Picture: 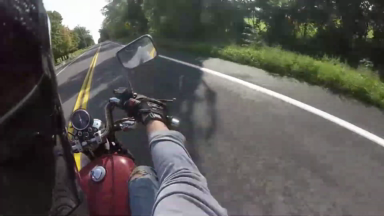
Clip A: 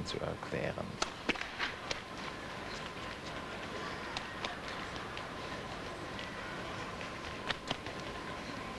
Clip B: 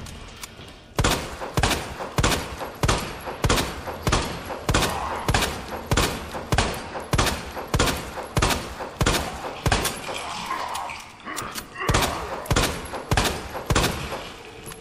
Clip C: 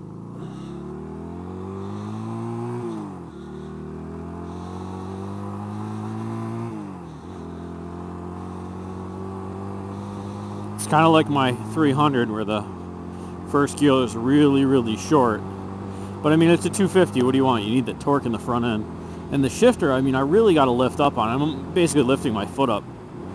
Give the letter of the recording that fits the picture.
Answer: C